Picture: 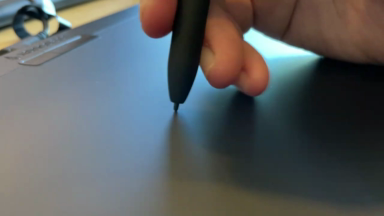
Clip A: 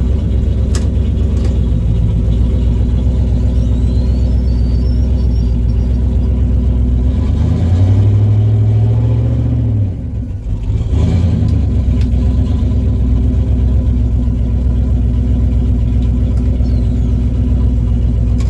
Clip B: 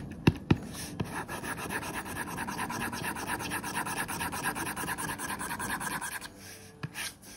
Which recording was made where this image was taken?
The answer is B